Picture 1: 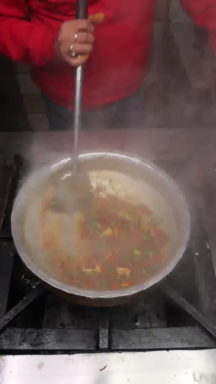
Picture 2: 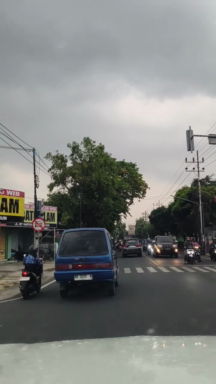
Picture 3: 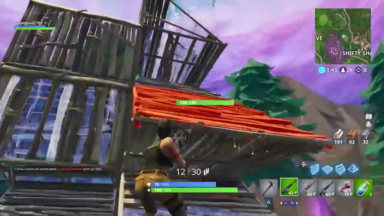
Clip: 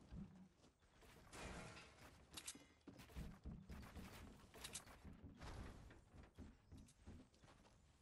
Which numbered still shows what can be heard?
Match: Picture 3